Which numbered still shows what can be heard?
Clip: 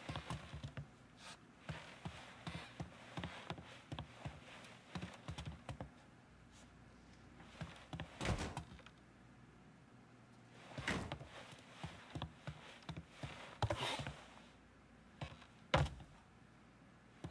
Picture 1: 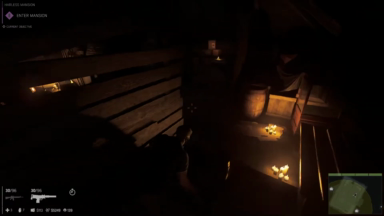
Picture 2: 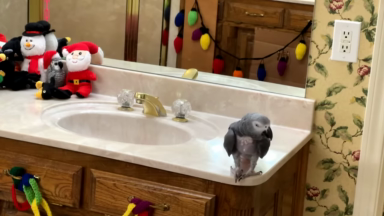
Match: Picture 1